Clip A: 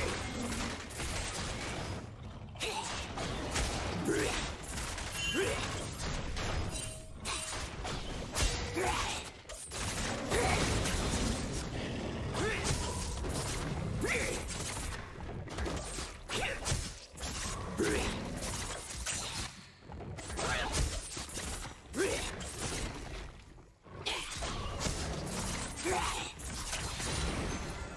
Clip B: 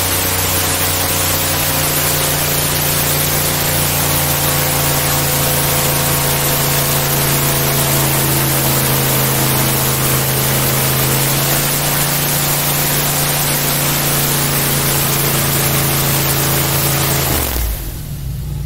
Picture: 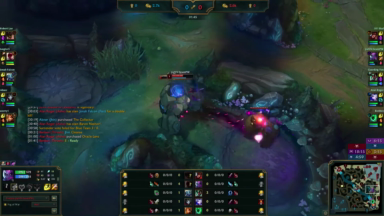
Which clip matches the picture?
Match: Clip A